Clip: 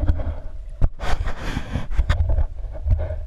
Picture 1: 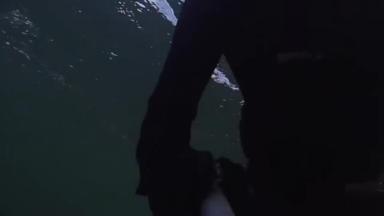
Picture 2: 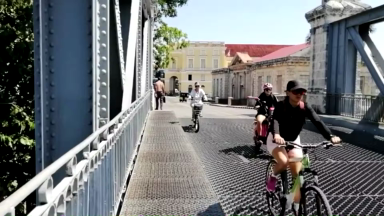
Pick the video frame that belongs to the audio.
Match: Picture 1